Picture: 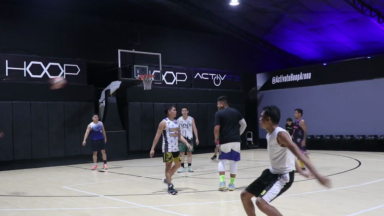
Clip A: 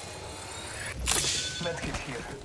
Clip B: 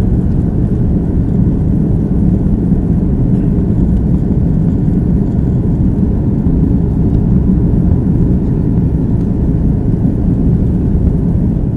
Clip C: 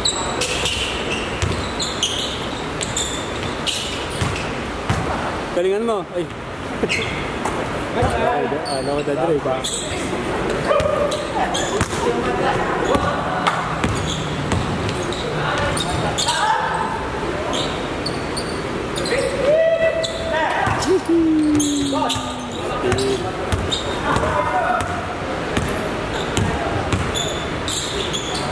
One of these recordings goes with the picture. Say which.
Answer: C